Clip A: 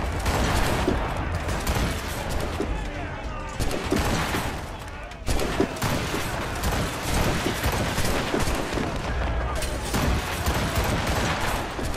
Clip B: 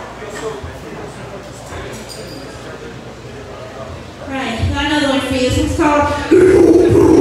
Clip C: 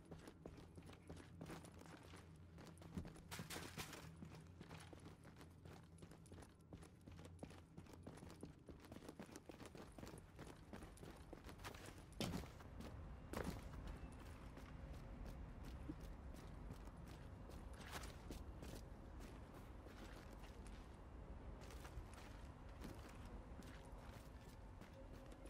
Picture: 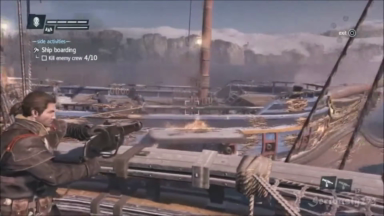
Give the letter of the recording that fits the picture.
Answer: A